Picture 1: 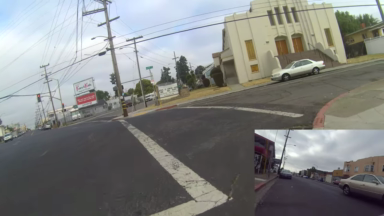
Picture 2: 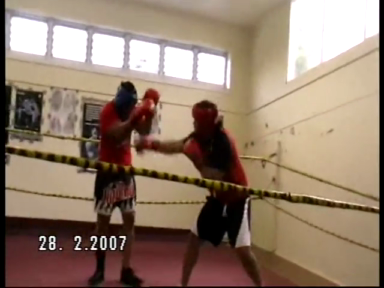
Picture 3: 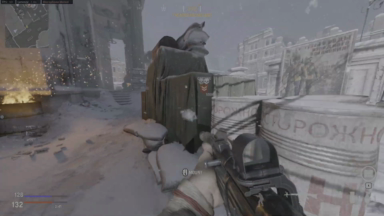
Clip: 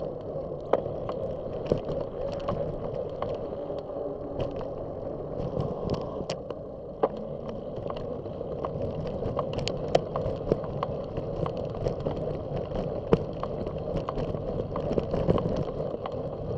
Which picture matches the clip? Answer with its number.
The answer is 1